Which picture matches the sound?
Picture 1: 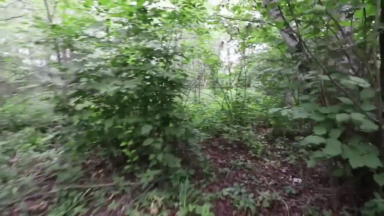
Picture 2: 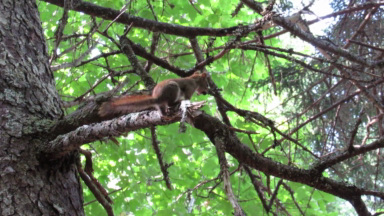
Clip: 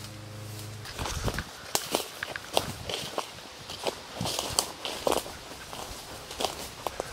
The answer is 1